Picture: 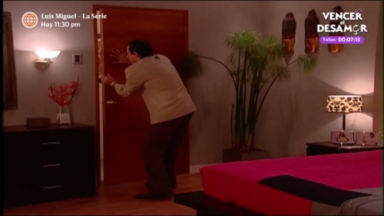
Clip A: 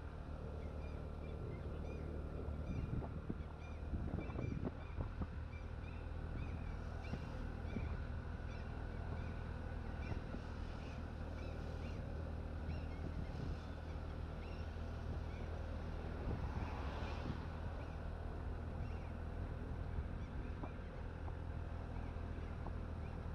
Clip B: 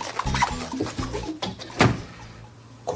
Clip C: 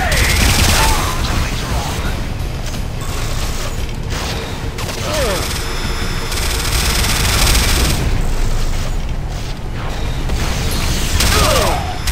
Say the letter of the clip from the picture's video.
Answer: B